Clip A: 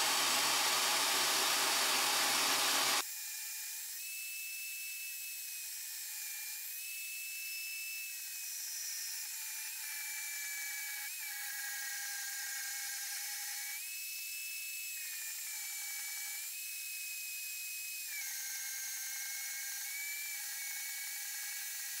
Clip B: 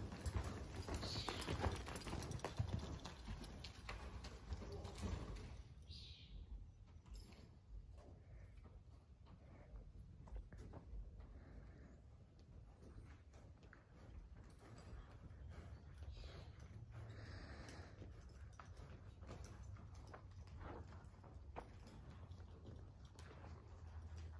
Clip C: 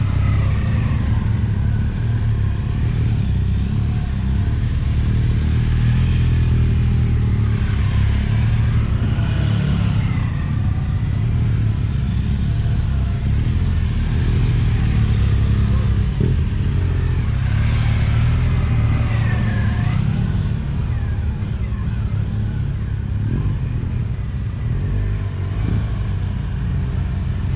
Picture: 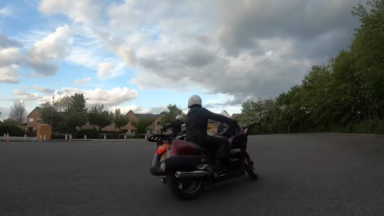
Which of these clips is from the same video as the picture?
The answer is C